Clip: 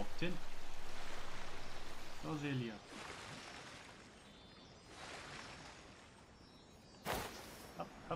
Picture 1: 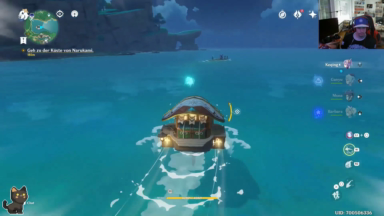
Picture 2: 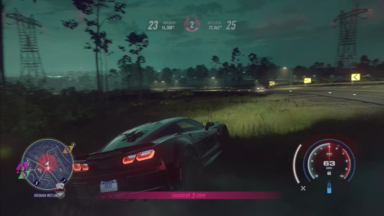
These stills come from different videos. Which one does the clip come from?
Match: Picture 1